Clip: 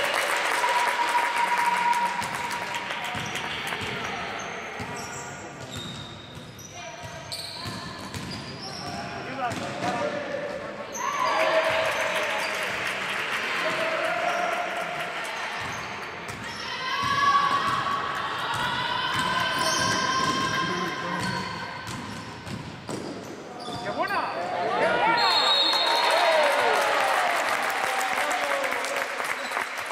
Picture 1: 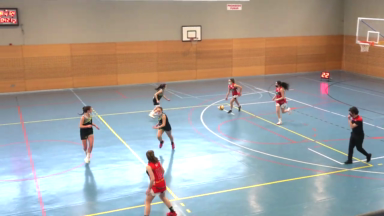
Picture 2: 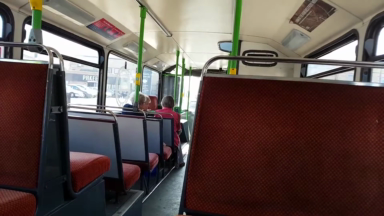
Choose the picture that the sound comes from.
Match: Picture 1